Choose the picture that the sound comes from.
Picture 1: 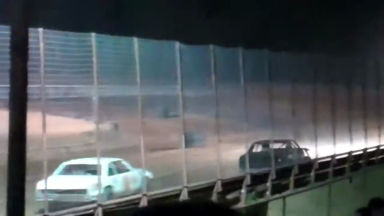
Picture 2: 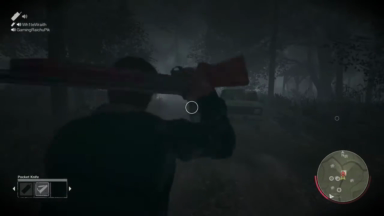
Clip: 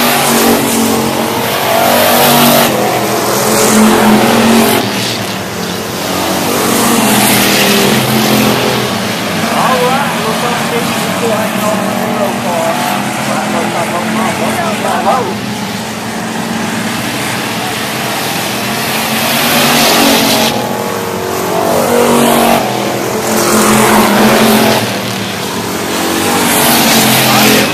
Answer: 1